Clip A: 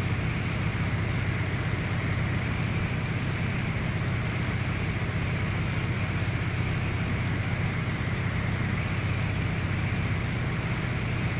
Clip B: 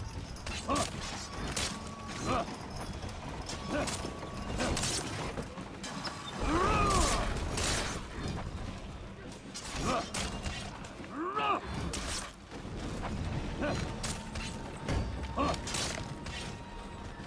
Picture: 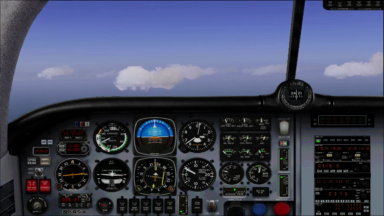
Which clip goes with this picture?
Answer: A